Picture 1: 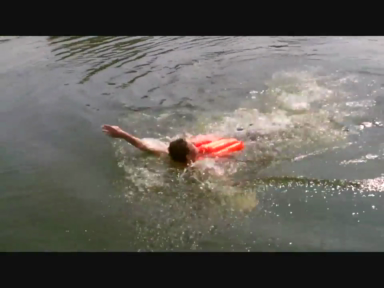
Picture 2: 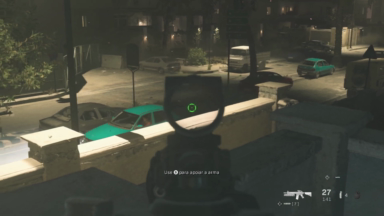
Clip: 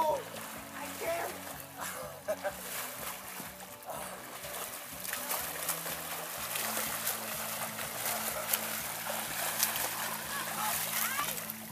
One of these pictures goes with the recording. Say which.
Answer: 1